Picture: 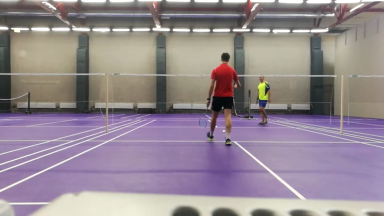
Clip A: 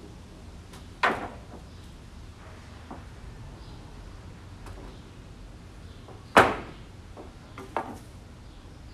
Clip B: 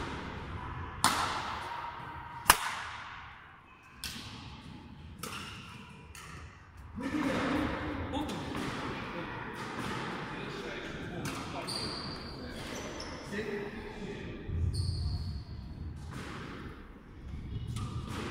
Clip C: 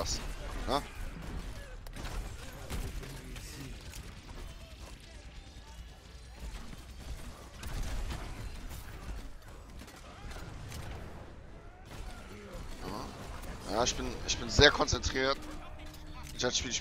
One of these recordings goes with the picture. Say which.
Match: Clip B